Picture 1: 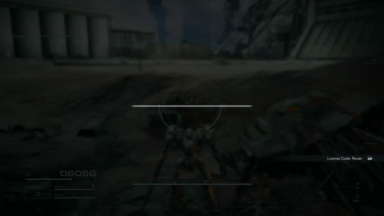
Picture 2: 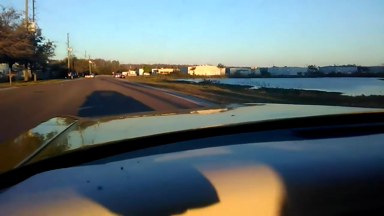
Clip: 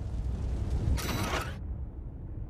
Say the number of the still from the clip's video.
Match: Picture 1